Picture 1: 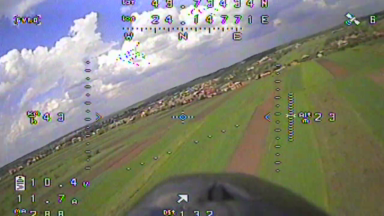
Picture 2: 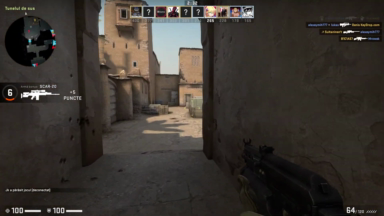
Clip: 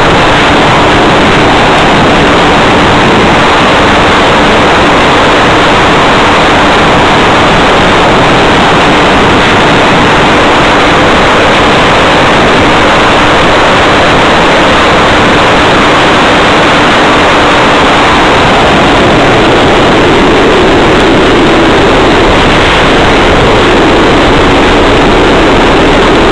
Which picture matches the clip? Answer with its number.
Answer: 1